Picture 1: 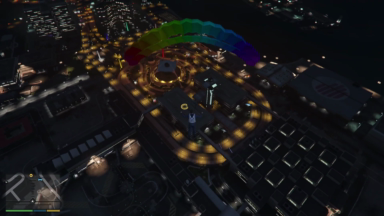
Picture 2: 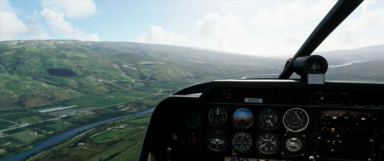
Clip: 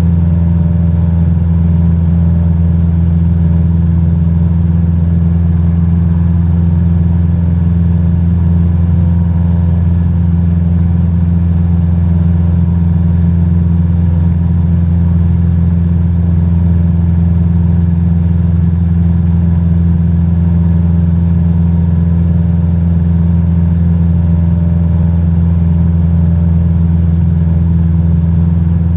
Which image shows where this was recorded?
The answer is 2